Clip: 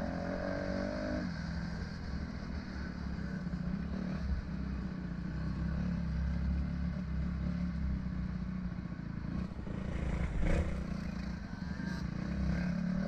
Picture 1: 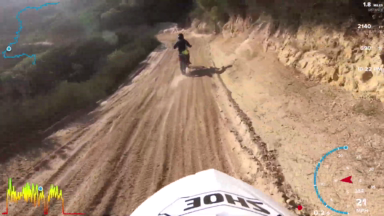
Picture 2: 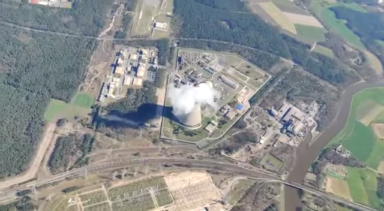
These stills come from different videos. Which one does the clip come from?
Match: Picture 1